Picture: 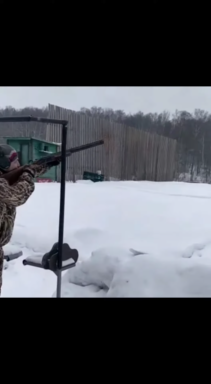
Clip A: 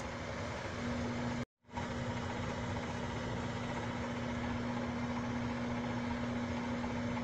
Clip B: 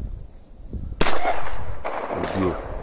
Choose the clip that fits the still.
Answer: B